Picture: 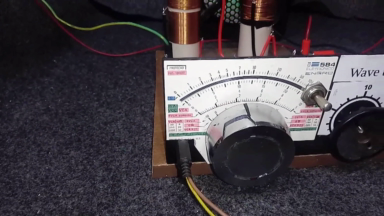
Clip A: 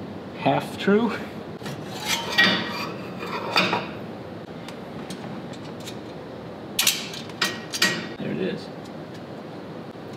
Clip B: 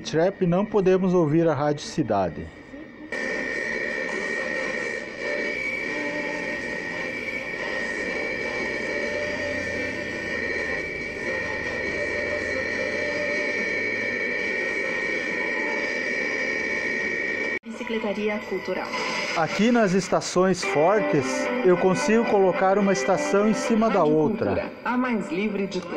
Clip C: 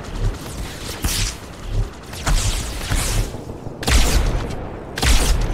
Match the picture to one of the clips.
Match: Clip B